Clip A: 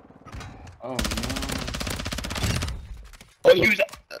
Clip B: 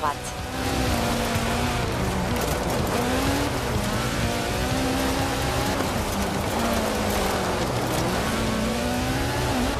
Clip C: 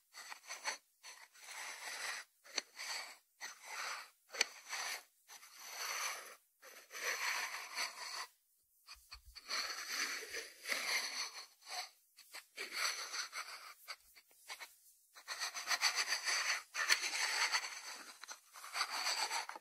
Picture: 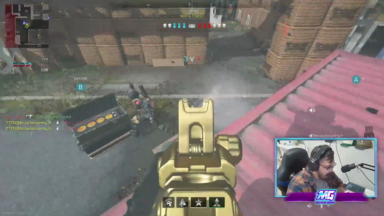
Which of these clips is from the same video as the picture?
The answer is A